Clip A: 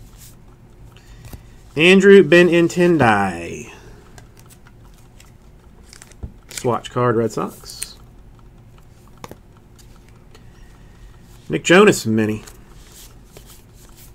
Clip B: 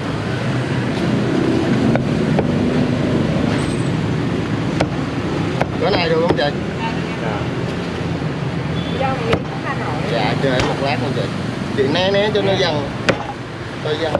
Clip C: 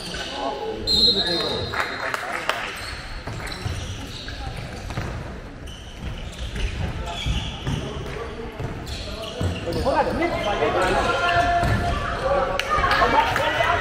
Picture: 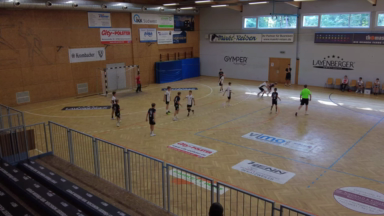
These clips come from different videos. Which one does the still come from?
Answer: C